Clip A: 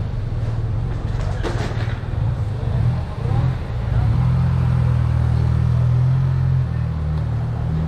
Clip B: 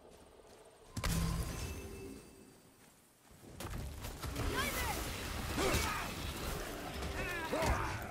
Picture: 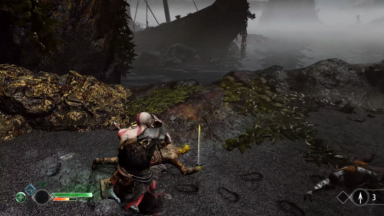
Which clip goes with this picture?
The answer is B